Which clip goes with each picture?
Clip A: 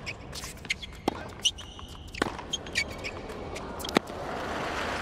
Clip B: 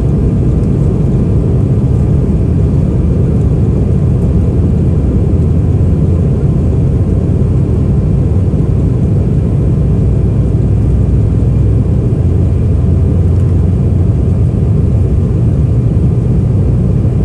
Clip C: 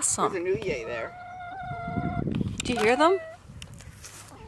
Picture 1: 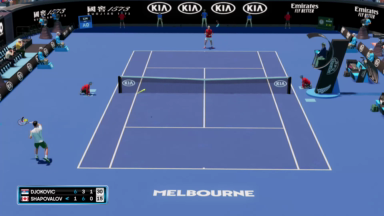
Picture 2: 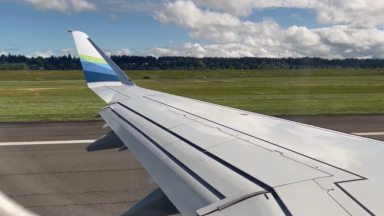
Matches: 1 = A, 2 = B